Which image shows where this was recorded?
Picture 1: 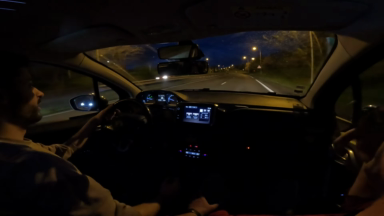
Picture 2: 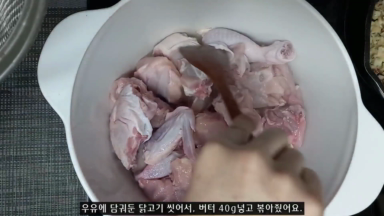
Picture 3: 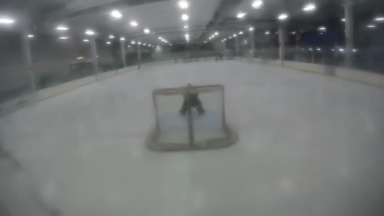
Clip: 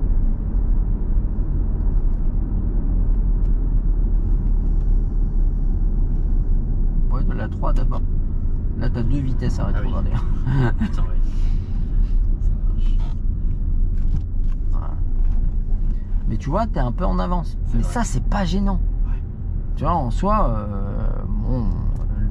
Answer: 1